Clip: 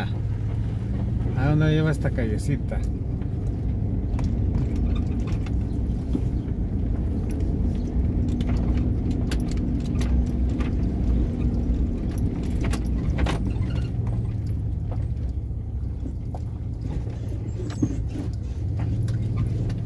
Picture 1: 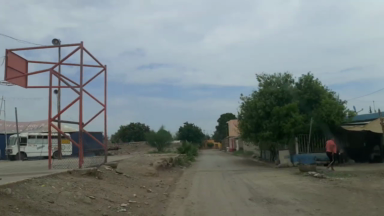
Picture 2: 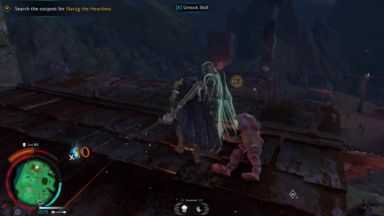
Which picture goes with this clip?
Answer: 1